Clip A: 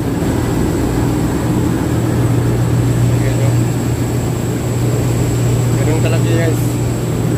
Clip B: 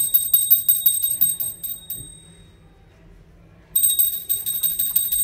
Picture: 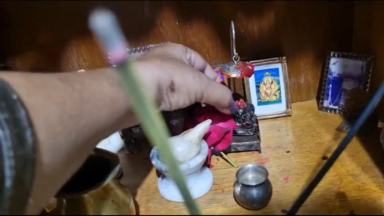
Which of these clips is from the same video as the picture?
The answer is B